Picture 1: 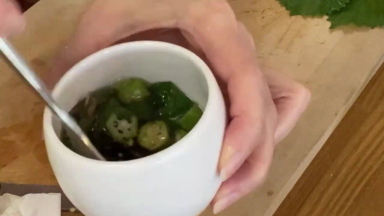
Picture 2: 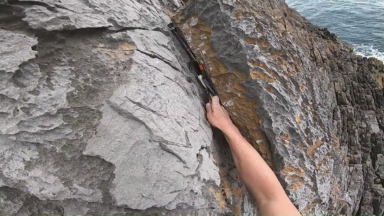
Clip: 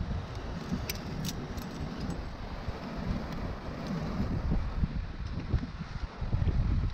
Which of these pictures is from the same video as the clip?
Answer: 2